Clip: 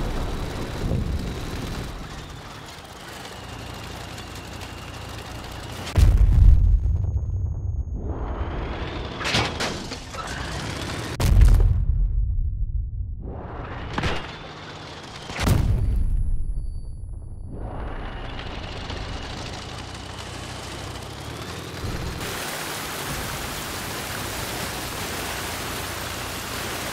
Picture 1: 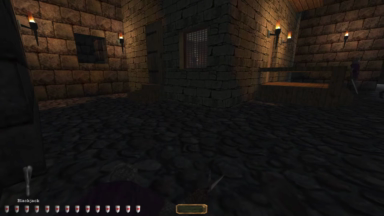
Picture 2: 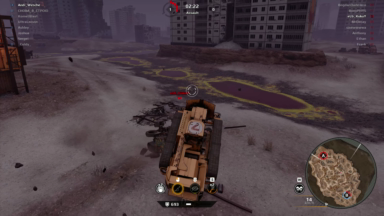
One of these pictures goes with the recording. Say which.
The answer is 2